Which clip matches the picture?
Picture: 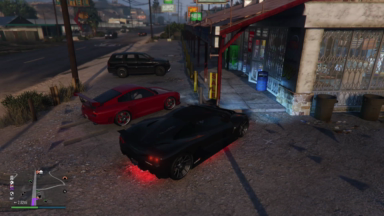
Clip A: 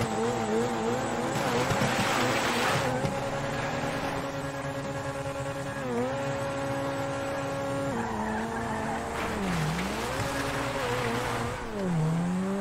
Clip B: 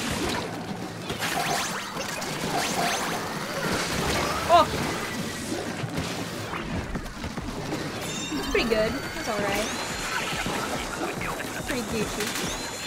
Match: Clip A